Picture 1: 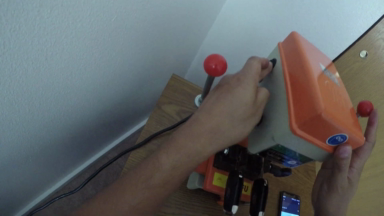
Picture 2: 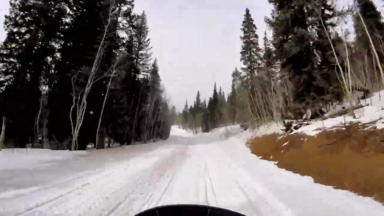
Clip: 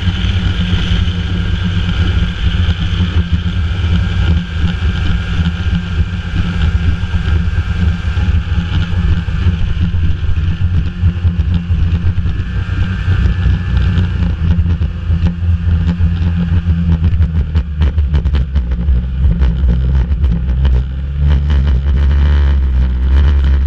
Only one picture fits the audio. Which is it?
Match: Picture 2